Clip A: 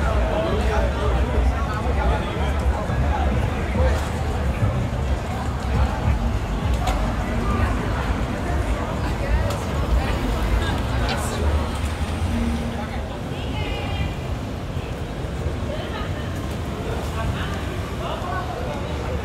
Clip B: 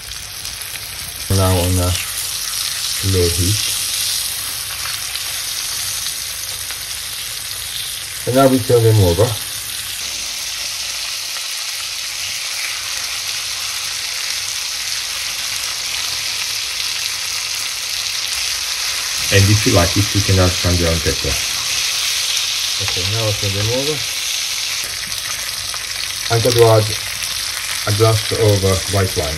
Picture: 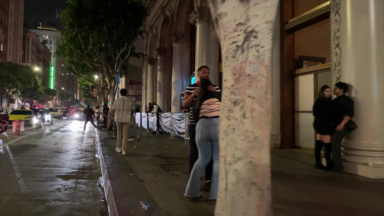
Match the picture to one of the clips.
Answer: A